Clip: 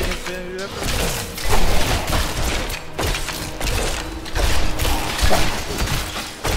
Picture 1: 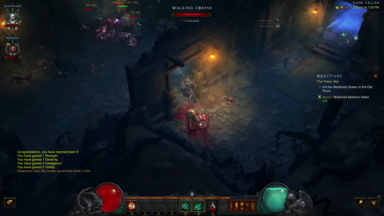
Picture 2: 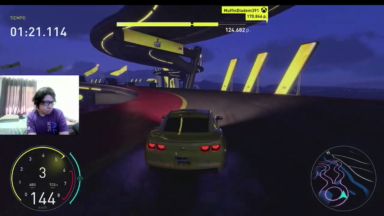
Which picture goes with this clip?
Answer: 1